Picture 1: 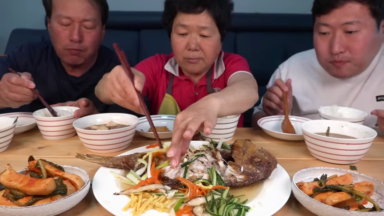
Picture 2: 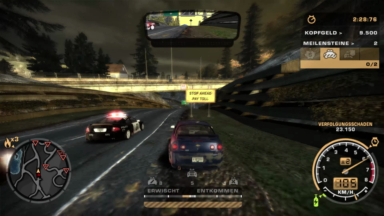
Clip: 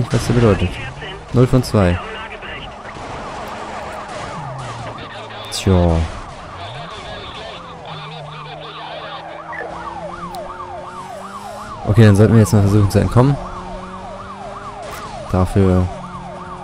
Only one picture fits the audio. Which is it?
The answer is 2